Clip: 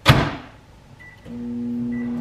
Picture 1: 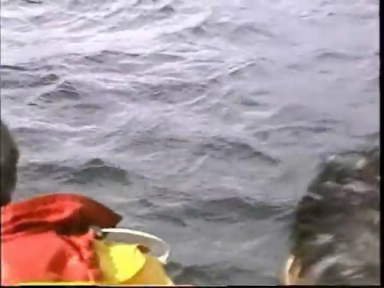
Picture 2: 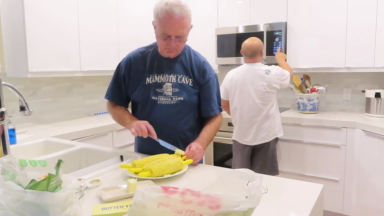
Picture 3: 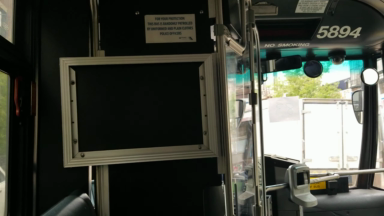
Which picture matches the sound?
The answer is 2